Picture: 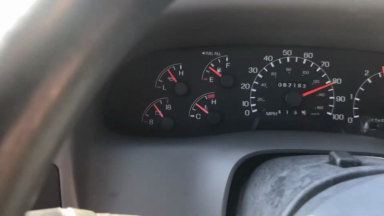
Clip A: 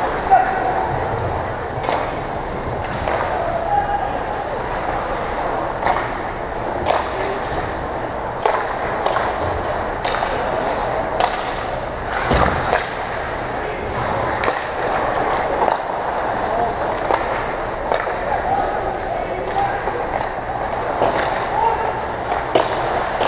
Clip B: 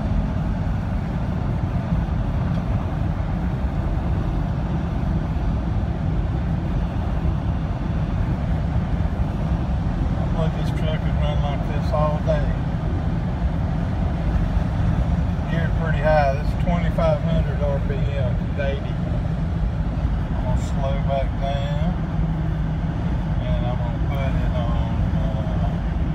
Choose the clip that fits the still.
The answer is B